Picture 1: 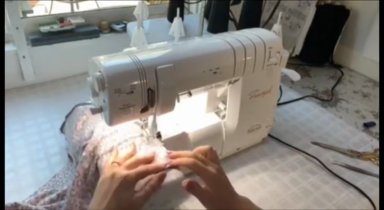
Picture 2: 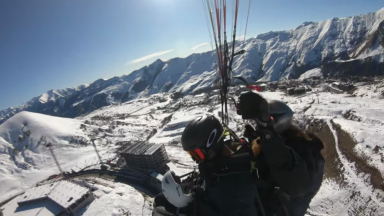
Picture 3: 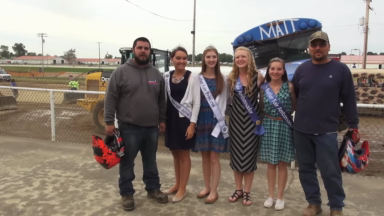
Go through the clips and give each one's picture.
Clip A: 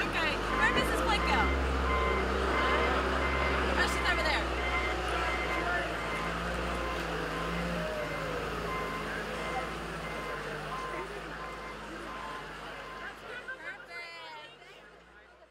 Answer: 3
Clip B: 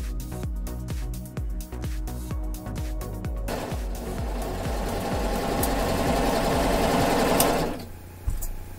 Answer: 1